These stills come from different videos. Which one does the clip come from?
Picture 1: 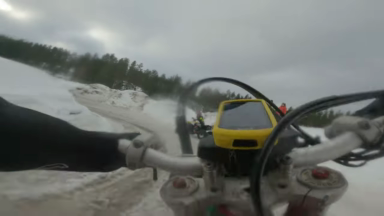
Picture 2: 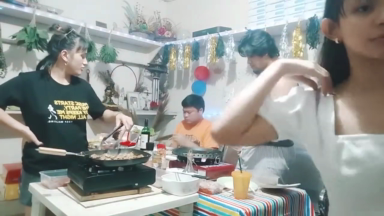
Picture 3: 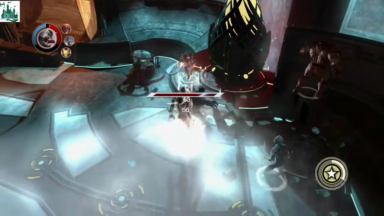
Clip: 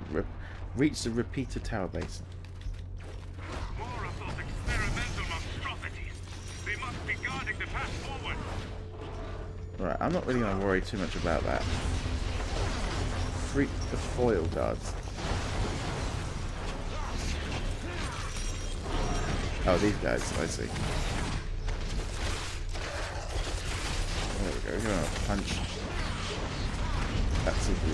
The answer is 3